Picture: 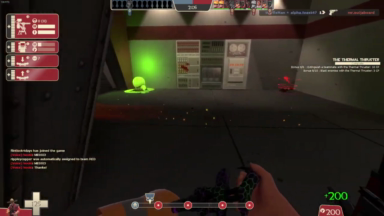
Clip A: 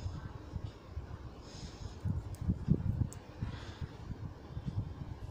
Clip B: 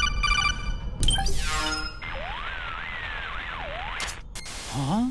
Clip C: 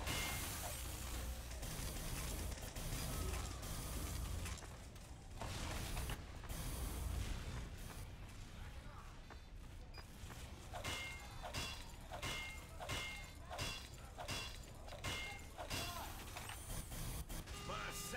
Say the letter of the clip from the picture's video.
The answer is C